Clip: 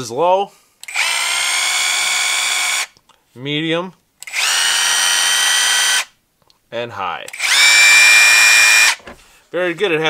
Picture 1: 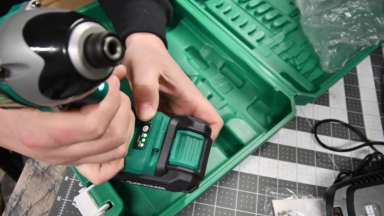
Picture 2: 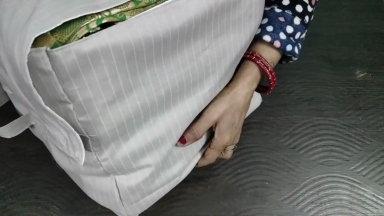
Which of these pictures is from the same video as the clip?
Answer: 1